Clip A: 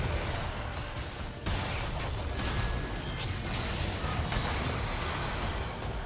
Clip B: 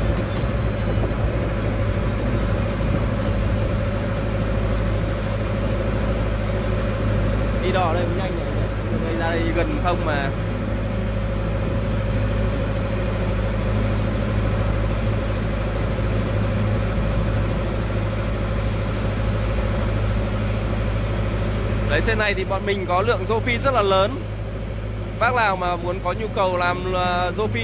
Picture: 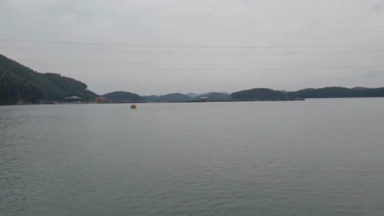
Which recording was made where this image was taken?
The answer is B